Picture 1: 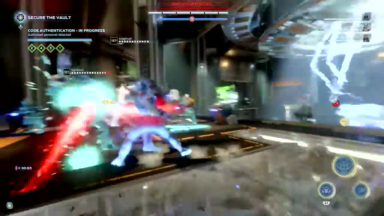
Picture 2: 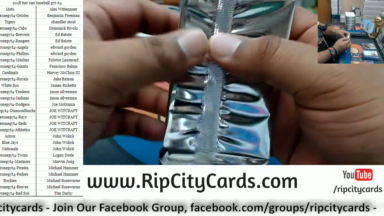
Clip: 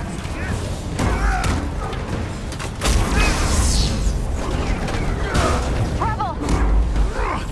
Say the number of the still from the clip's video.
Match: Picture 1